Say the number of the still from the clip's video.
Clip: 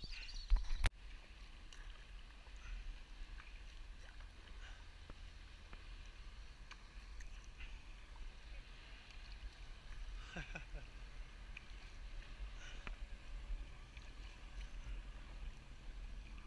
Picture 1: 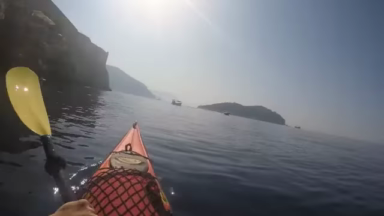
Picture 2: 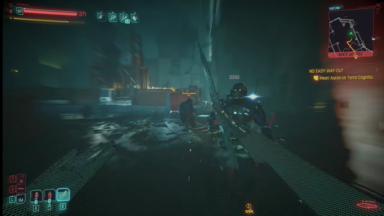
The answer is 1